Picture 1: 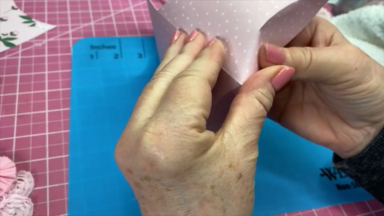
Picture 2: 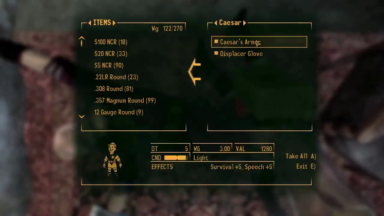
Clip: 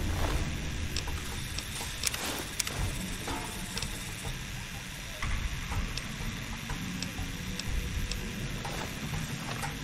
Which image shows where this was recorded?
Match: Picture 2